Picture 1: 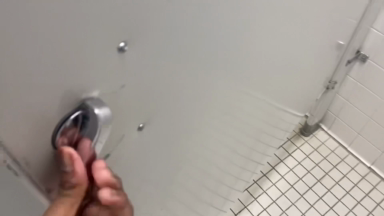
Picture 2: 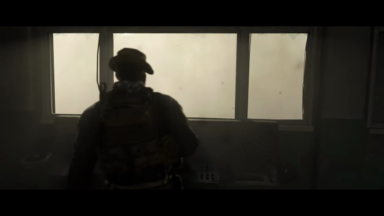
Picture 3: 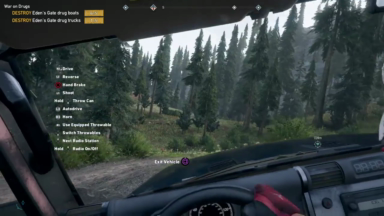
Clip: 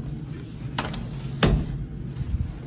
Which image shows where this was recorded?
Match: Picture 1